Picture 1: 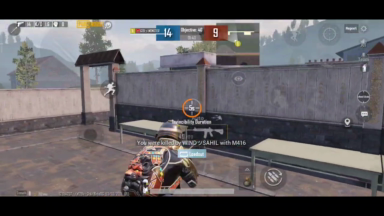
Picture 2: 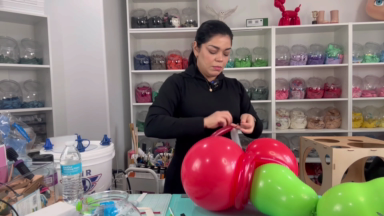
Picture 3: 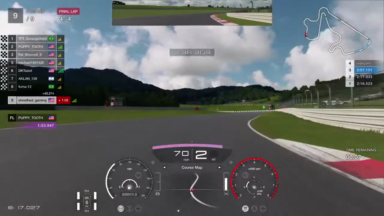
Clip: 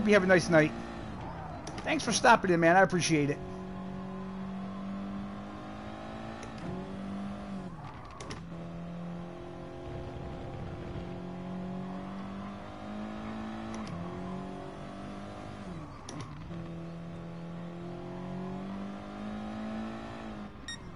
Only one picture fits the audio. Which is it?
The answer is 3